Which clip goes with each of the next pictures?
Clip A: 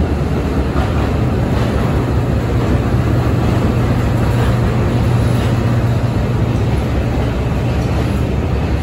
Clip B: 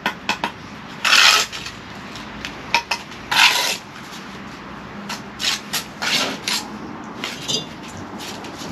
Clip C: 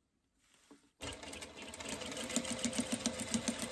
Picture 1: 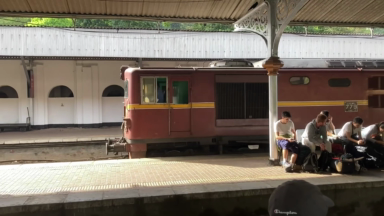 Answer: A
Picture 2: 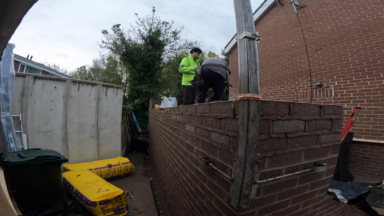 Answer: B